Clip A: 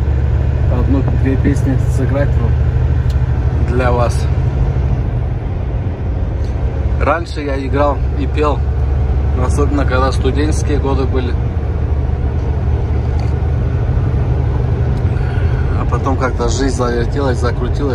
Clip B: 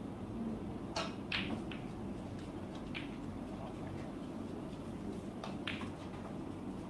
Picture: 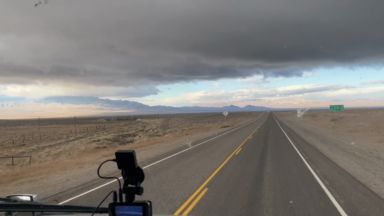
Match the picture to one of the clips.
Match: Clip A